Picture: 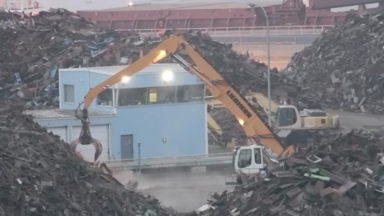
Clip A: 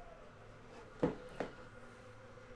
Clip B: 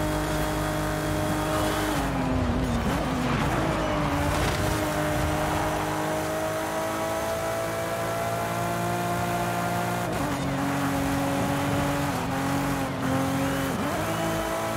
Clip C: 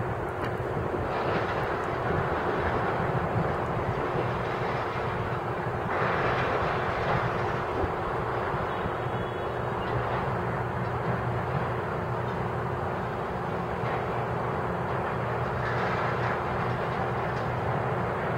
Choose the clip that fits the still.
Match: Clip C